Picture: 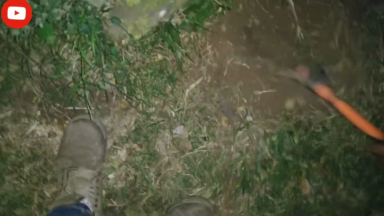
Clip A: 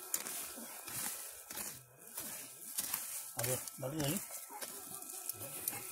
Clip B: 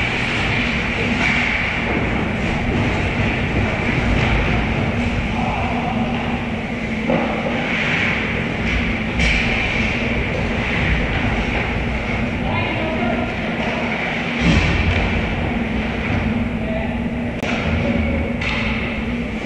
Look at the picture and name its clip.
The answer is A